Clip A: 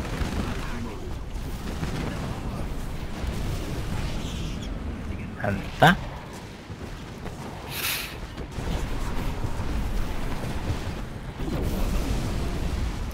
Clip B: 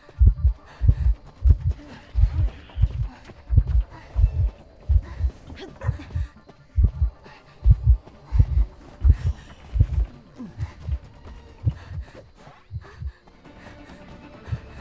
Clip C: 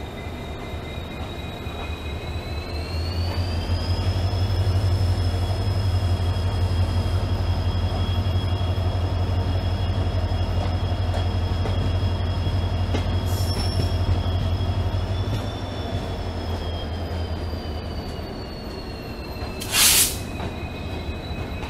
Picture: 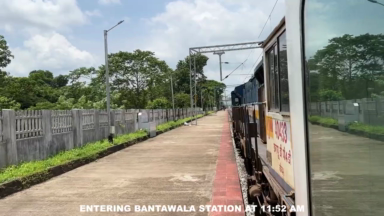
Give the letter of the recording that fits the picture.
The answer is C